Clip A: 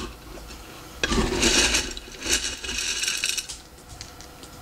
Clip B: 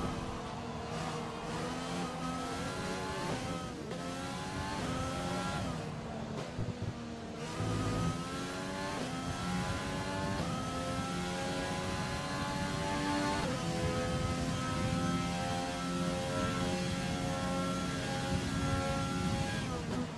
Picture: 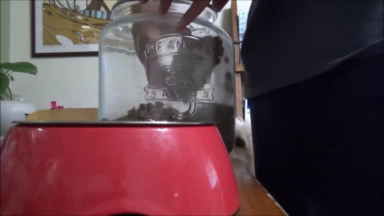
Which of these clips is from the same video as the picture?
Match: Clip A